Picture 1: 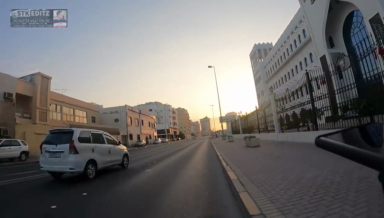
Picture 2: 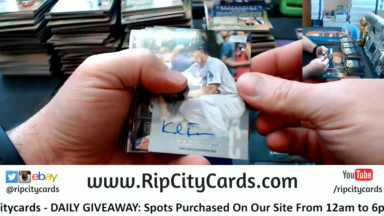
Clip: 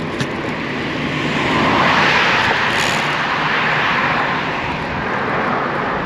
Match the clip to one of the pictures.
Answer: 1